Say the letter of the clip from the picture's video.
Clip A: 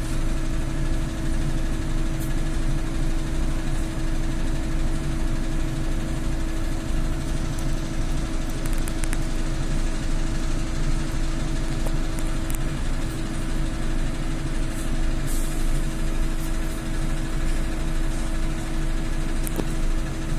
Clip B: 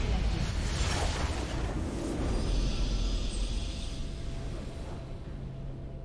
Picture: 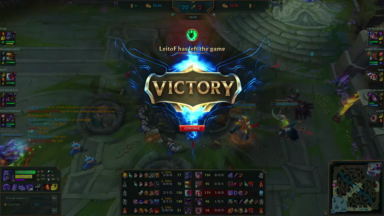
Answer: B